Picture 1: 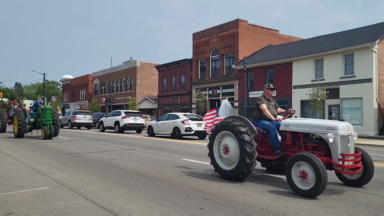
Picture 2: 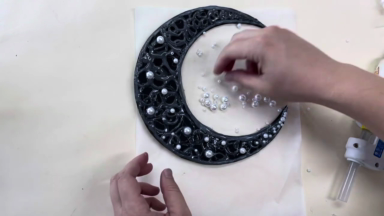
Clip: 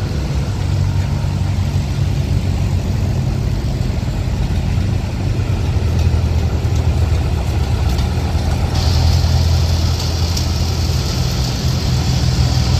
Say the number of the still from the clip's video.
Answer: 1